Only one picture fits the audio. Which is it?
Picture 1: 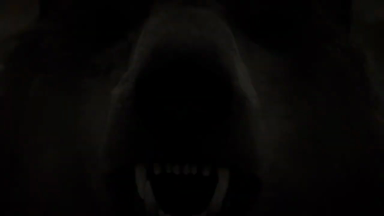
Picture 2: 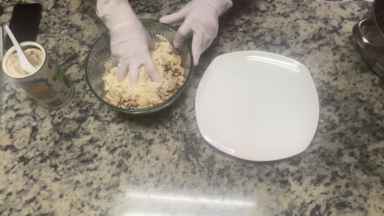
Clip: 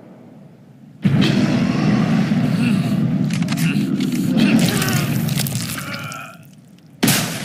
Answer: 1